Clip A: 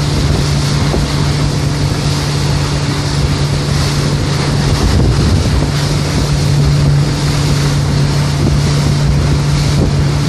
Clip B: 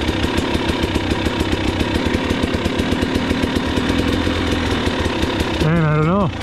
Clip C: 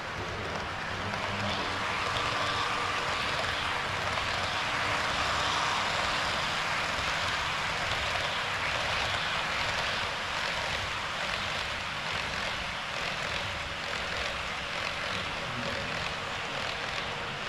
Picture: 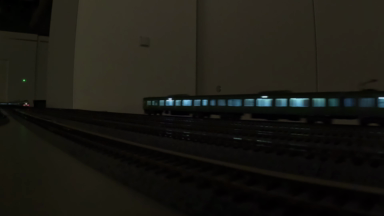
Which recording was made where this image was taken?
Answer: C